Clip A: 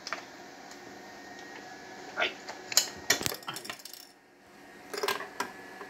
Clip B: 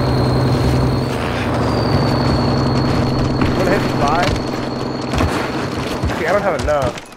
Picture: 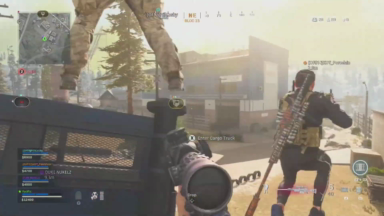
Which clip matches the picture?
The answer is B